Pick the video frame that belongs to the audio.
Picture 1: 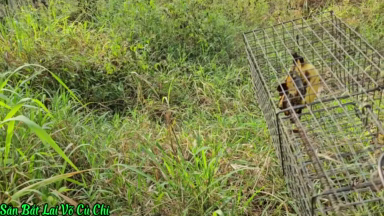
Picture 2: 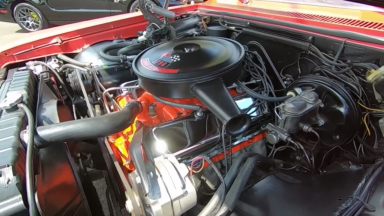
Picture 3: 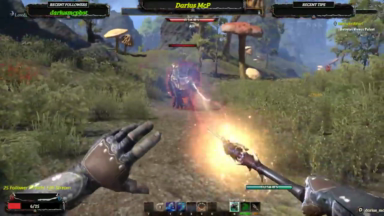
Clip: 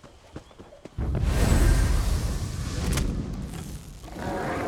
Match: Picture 3